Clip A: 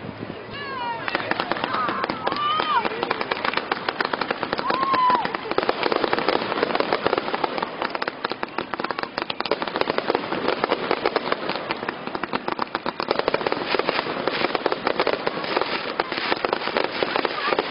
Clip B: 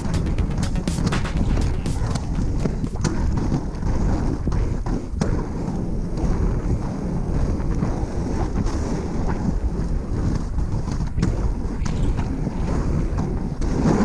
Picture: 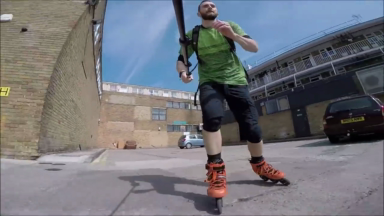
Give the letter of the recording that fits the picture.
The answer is B